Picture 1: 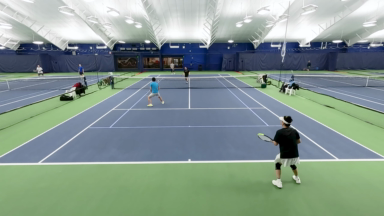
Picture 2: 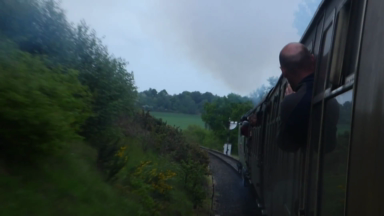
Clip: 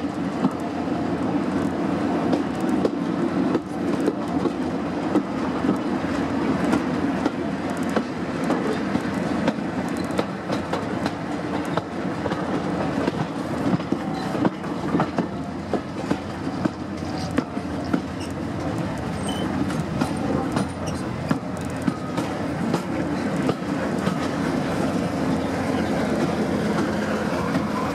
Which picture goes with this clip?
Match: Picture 2